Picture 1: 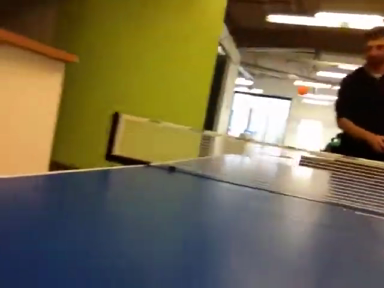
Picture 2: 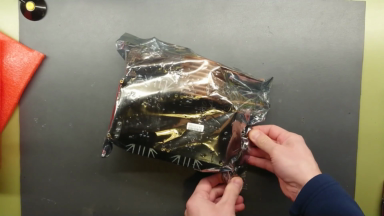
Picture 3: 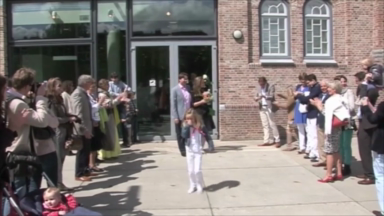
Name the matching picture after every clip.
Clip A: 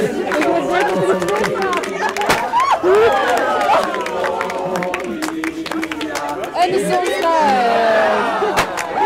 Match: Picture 3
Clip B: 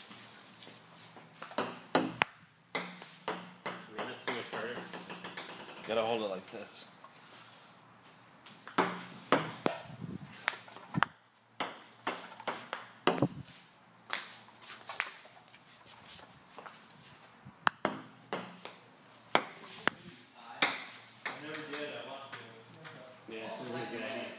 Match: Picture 1